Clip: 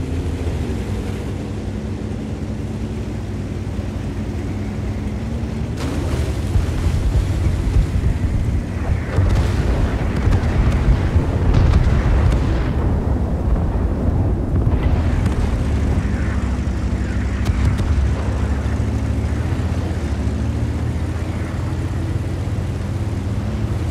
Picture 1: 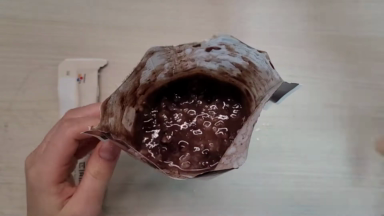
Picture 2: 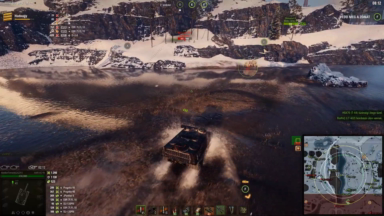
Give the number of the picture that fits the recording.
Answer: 2